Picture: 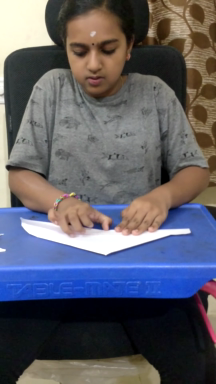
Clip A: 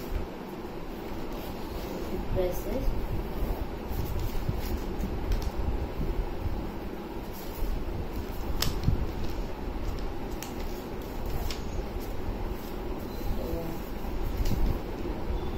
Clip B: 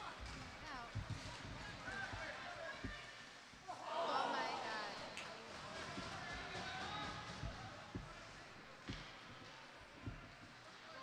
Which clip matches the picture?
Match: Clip A